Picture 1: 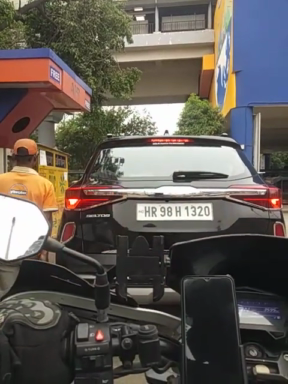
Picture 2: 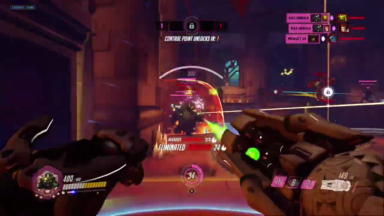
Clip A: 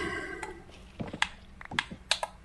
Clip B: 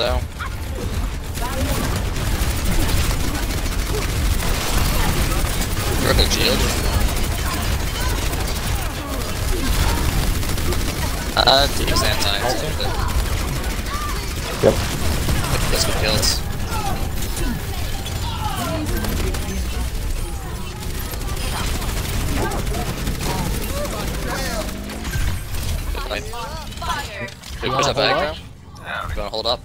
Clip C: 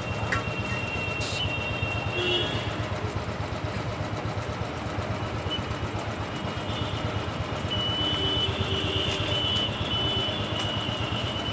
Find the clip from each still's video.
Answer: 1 C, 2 B